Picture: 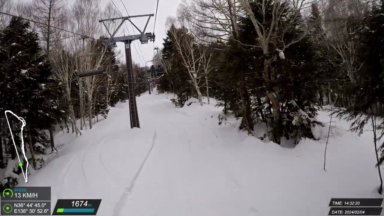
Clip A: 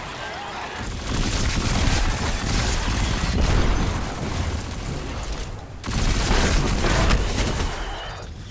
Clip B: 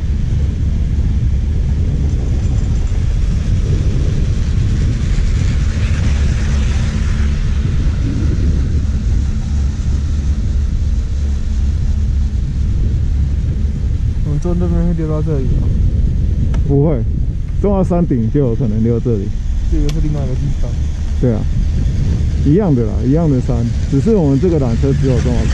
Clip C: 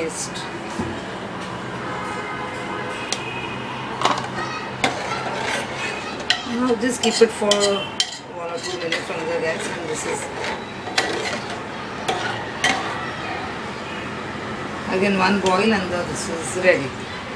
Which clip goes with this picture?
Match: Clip B